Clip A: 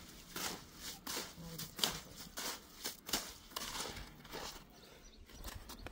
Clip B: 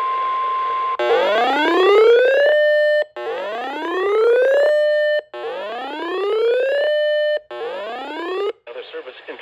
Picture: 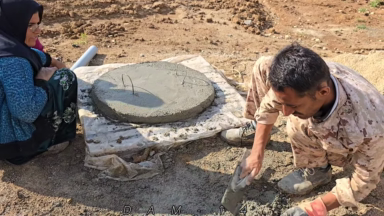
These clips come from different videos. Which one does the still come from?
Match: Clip A